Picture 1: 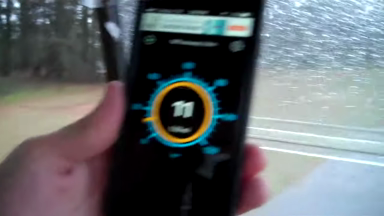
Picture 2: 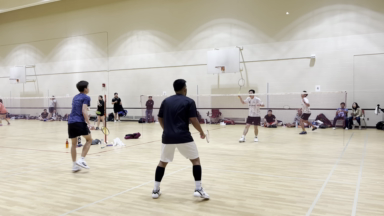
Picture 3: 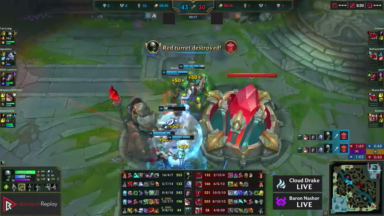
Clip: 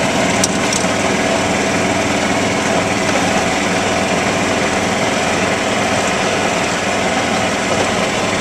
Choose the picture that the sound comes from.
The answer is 1